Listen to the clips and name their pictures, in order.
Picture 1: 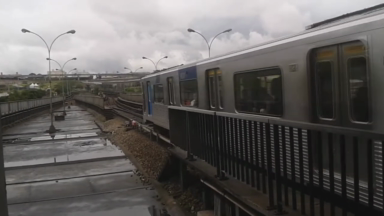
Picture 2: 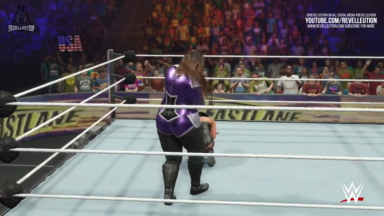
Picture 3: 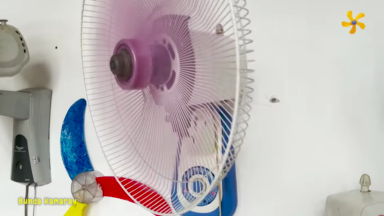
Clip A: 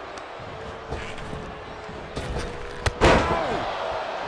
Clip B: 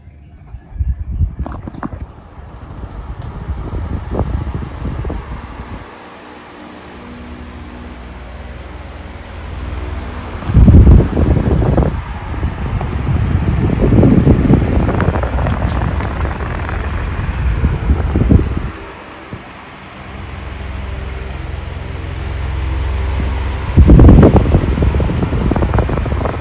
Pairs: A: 2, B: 3